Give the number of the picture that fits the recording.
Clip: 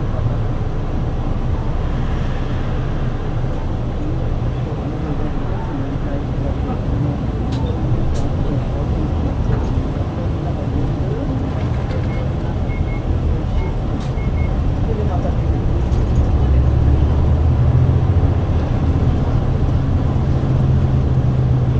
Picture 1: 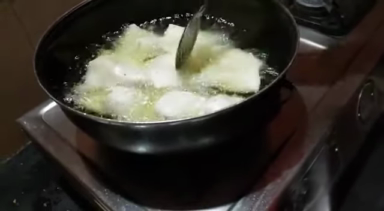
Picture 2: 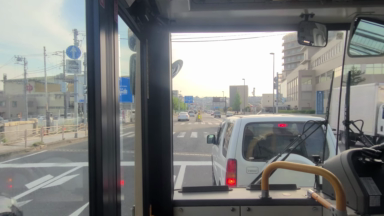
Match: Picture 2